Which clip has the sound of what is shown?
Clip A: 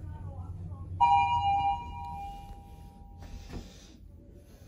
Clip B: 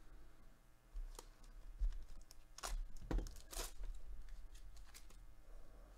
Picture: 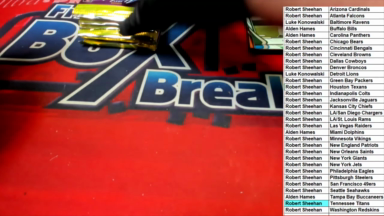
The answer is B